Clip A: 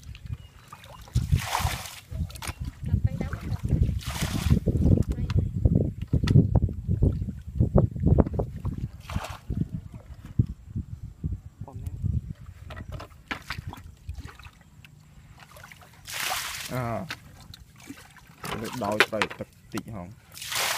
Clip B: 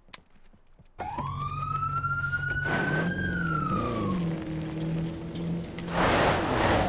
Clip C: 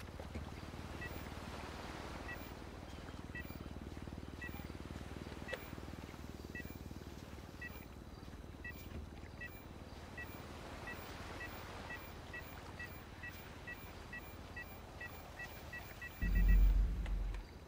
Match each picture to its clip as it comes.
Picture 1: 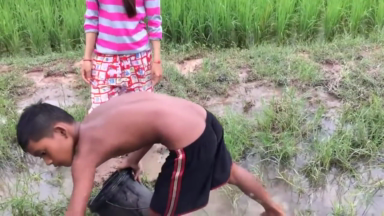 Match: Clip A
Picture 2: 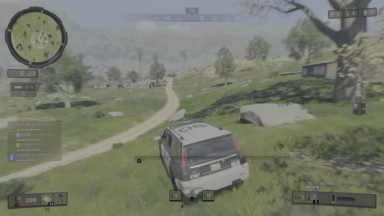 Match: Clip B